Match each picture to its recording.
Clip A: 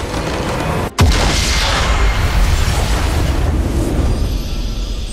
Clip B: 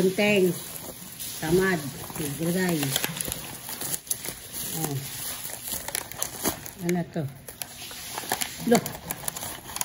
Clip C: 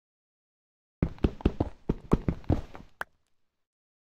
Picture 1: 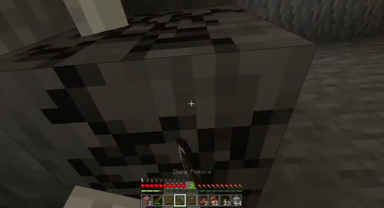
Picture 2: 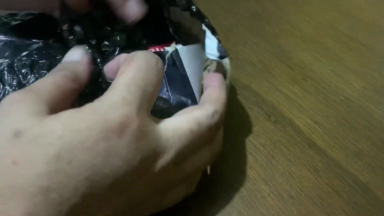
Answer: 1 C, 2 B